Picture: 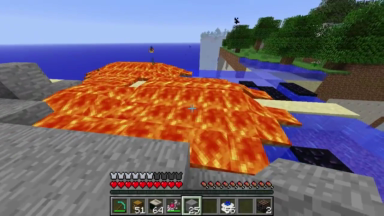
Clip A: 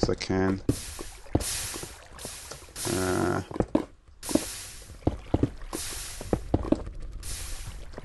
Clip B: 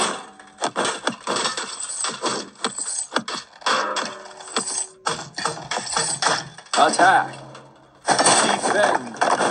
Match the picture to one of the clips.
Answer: A